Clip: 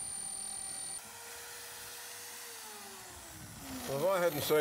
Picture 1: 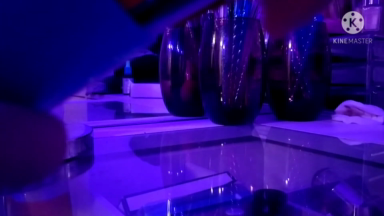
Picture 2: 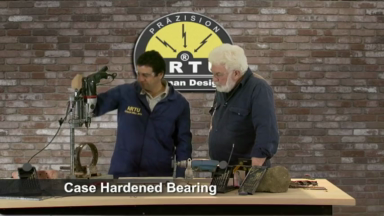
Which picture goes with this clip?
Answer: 2